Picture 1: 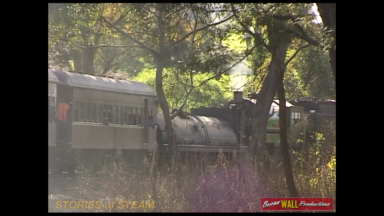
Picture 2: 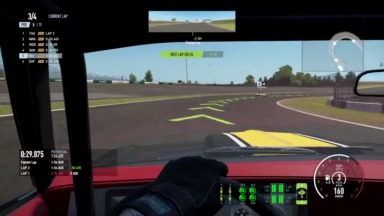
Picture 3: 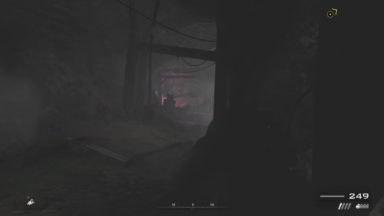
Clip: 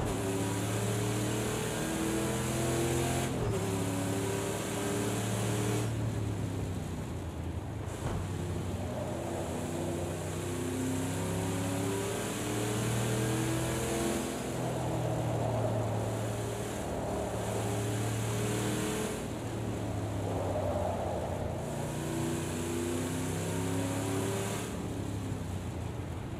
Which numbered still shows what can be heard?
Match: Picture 2